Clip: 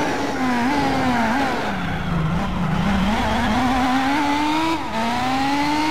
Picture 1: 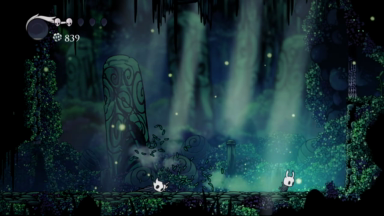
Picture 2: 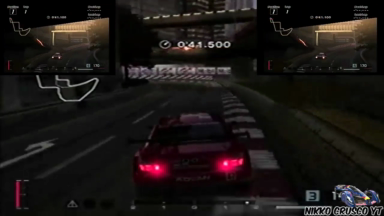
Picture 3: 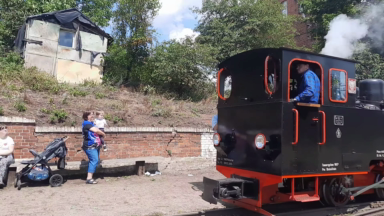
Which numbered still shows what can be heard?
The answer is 2